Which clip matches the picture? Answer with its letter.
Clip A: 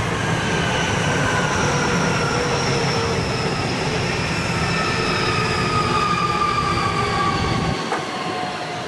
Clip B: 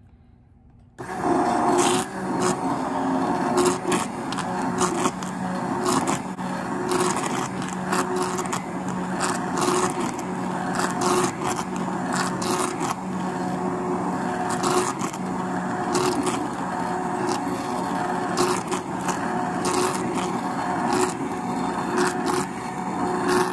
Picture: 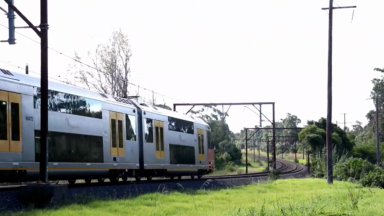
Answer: A